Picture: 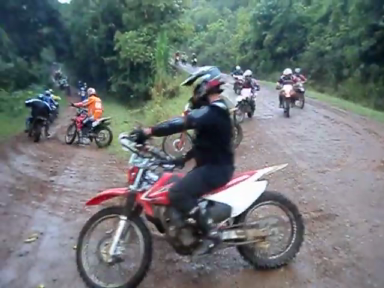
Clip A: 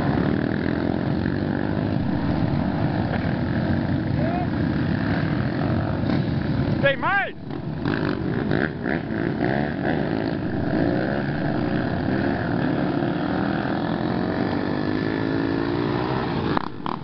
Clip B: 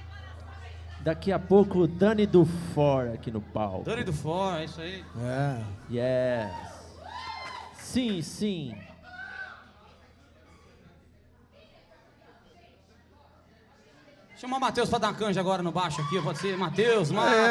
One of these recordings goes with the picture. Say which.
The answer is A